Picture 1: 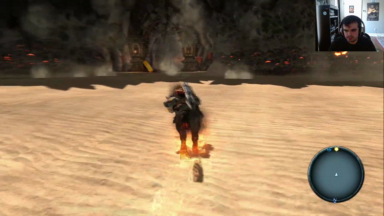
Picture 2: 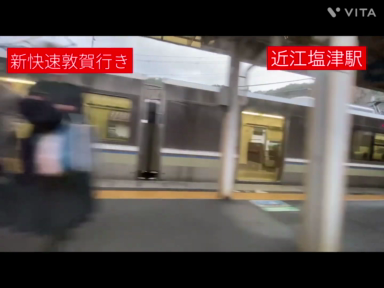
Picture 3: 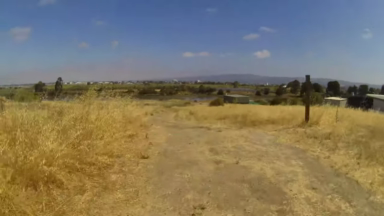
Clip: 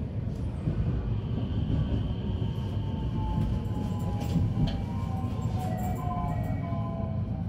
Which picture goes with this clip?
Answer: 2